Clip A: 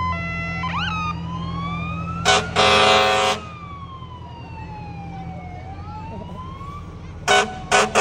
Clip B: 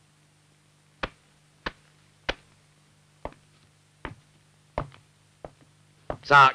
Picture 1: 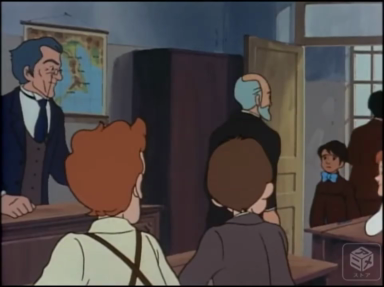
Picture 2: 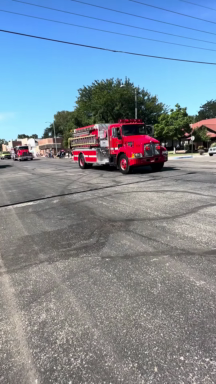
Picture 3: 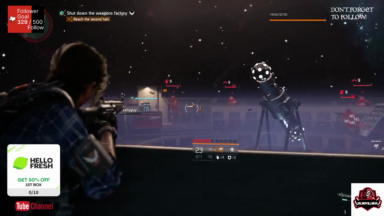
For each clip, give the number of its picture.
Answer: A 2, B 1